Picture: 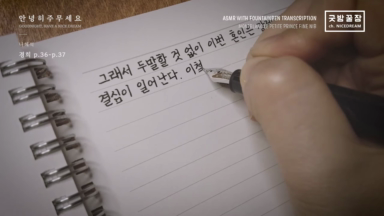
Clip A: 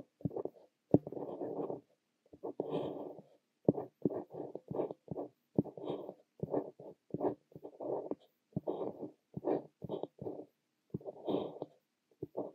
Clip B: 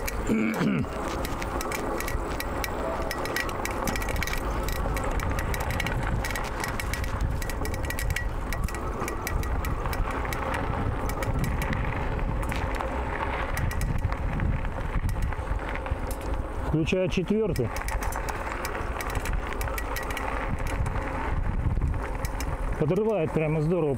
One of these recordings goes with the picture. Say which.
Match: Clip A